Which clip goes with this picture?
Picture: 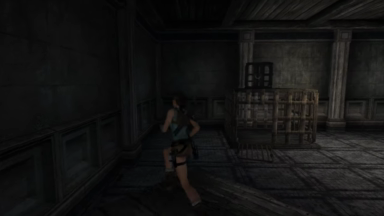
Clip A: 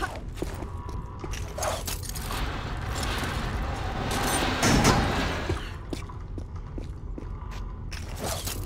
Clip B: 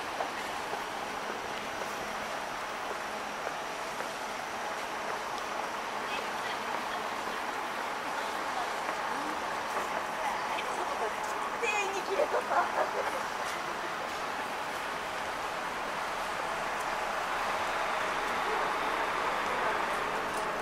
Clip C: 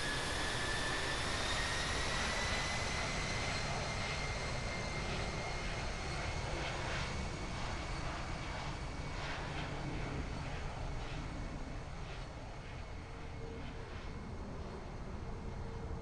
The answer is A